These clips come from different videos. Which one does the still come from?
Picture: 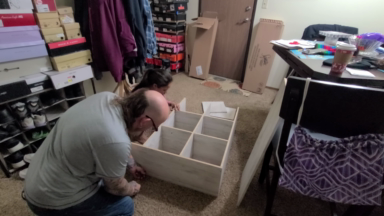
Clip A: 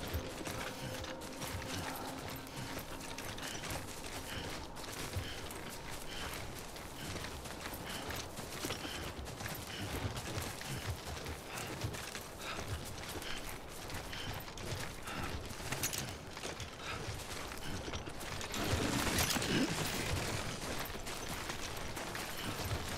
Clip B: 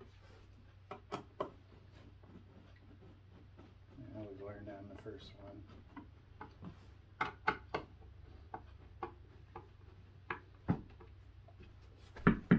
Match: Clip B